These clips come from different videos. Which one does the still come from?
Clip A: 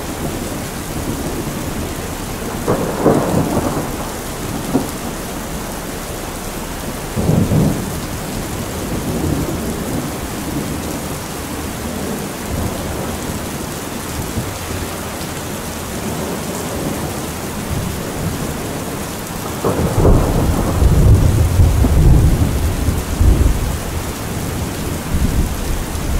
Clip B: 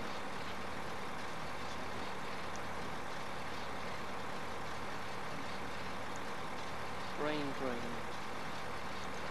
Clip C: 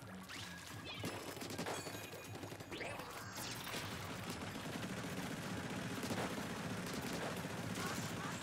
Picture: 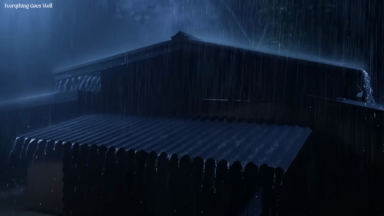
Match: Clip A